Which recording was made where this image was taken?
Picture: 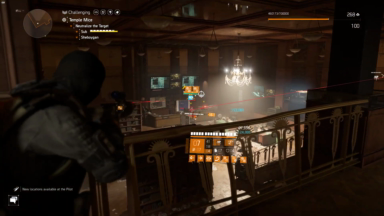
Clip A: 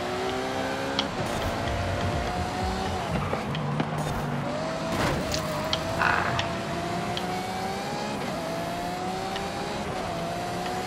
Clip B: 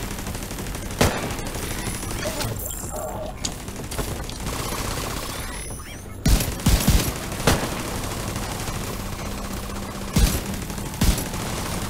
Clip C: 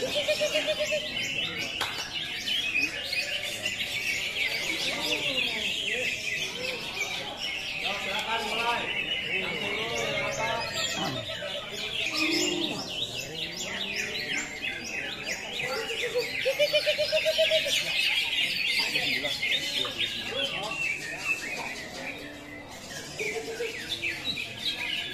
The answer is B